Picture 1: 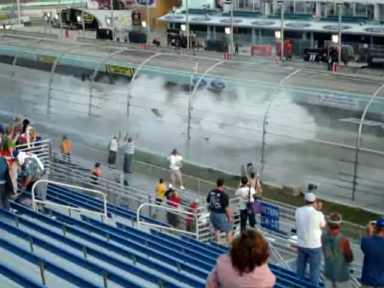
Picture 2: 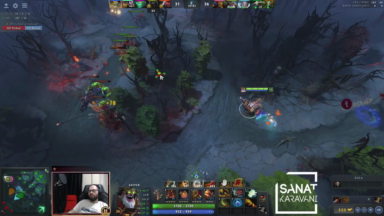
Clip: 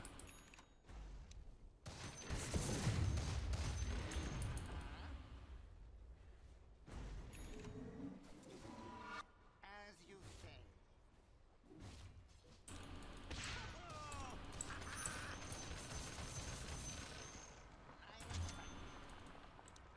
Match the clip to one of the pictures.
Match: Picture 2